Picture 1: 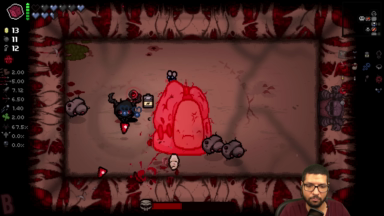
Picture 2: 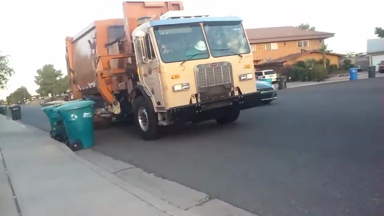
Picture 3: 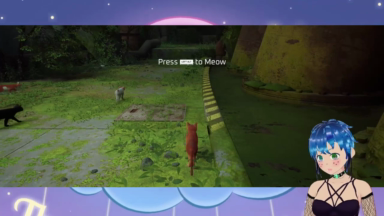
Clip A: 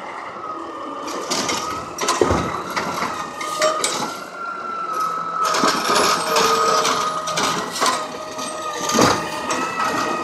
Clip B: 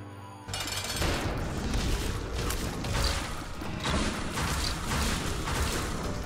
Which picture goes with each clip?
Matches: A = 2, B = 1